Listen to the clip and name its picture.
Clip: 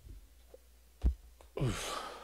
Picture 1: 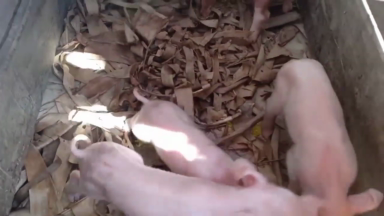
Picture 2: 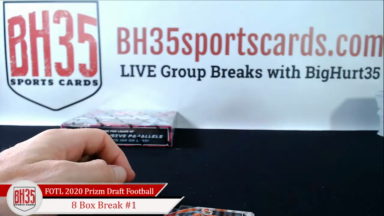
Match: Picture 2